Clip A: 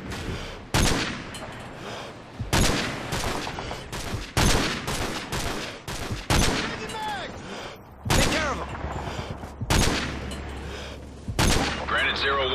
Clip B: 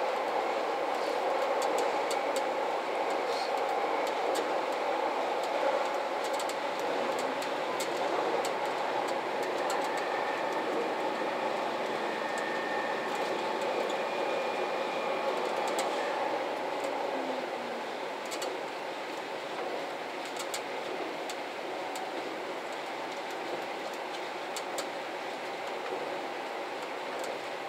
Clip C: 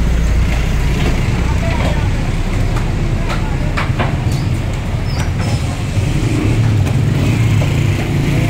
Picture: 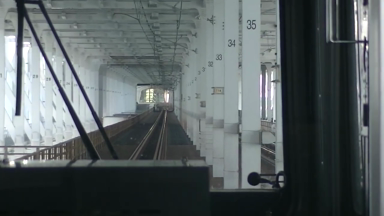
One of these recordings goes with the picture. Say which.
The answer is B